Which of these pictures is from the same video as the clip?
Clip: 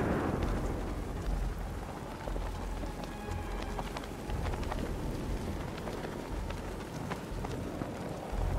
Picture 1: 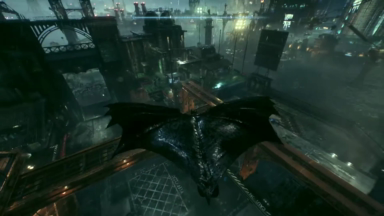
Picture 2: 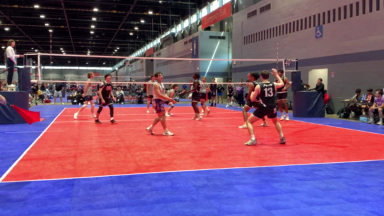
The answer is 1